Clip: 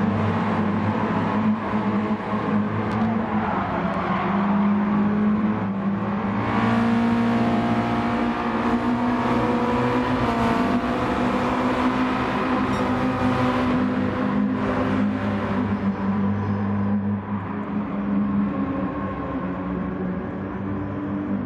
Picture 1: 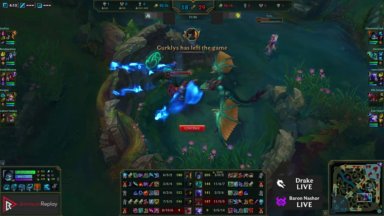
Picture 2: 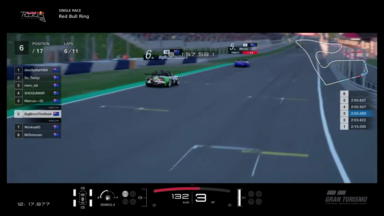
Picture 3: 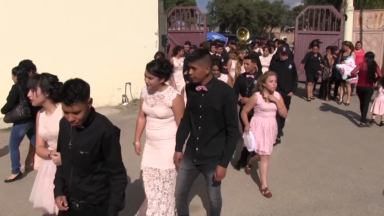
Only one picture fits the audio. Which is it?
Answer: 2